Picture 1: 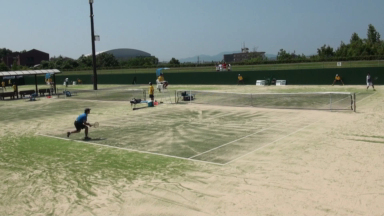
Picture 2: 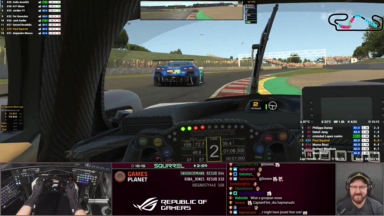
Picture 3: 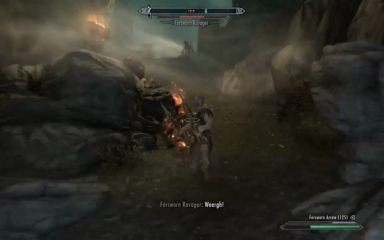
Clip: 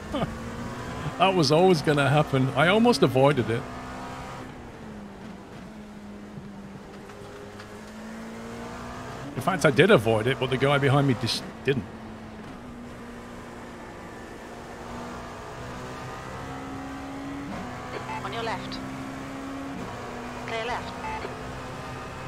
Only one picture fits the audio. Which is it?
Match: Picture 2